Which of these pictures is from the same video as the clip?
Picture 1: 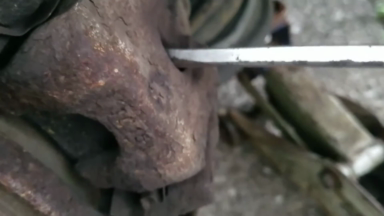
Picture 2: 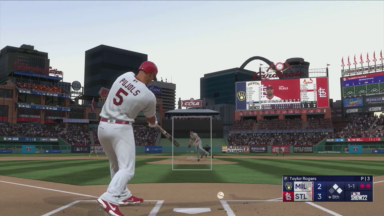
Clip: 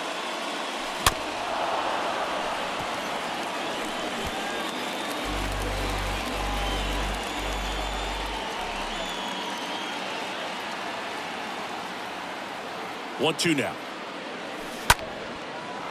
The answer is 2